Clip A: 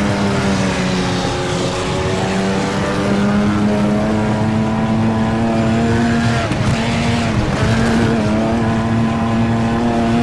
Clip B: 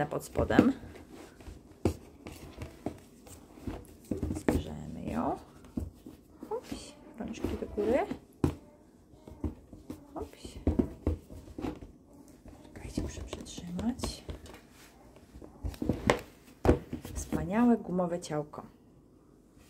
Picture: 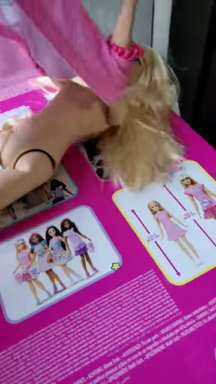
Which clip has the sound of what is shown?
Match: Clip B